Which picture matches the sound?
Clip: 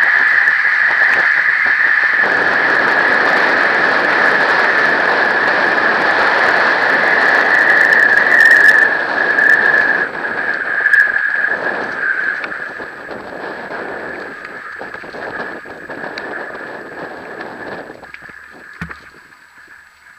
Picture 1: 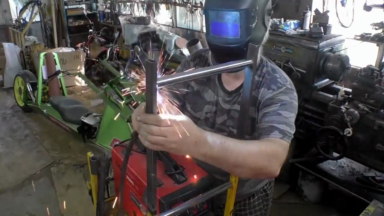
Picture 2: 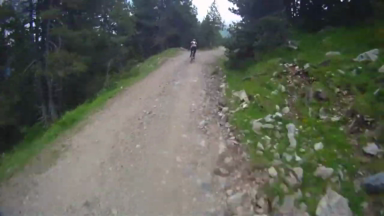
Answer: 2